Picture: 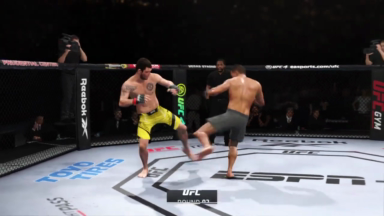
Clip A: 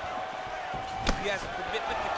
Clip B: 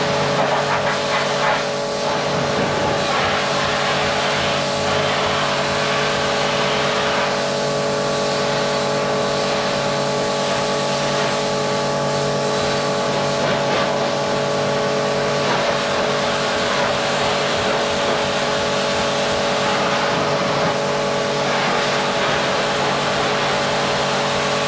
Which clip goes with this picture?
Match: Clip A